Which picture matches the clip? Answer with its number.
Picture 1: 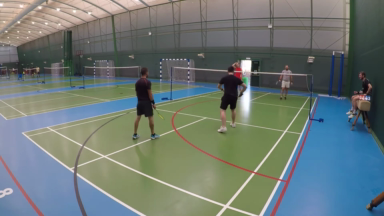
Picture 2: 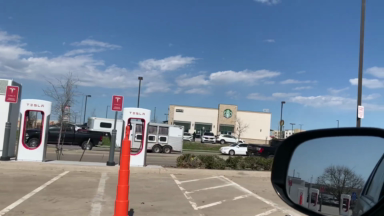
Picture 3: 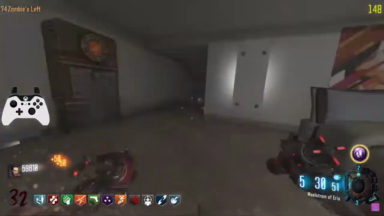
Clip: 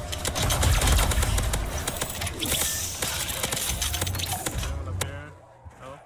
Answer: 3